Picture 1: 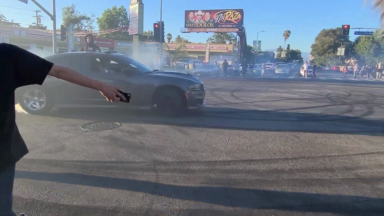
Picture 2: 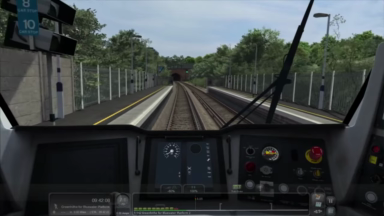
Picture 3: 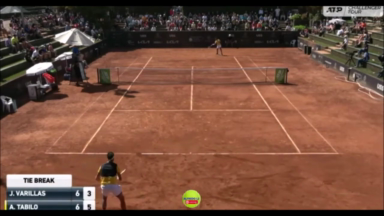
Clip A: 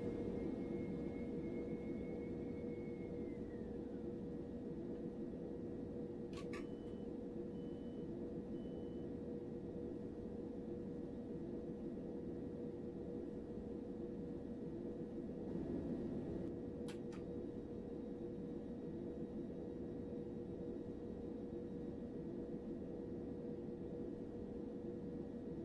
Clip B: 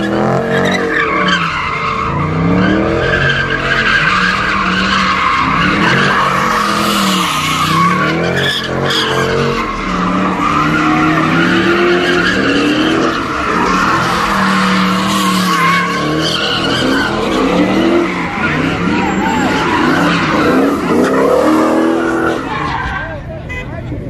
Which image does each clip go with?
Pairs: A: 2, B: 1